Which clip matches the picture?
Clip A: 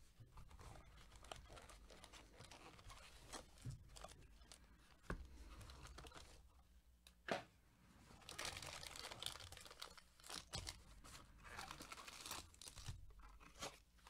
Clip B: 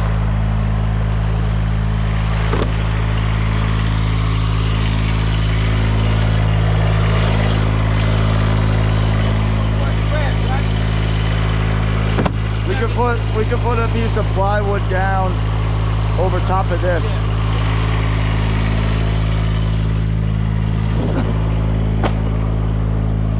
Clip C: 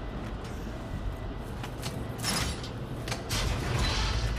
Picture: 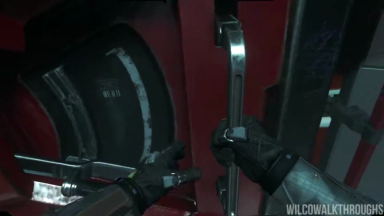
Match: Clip C